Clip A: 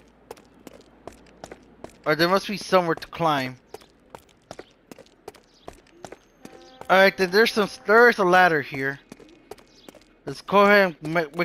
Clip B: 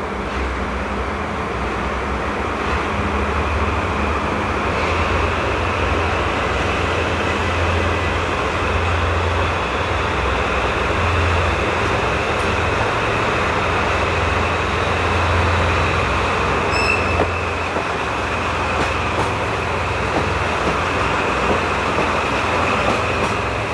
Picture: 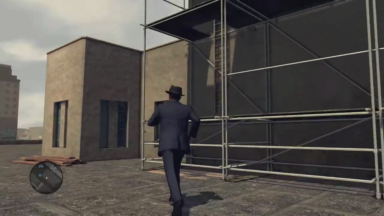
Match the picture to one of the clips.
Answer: A